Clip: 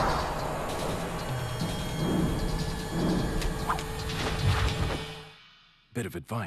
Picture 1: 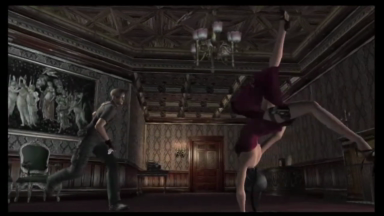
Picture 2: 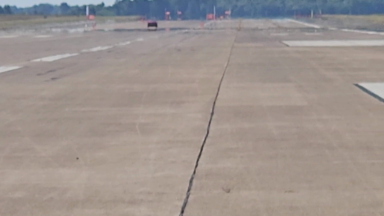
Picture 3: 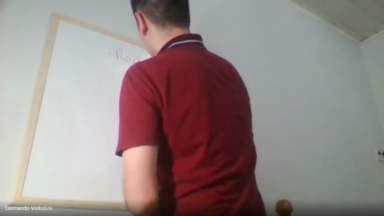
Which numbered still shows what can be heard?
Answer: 1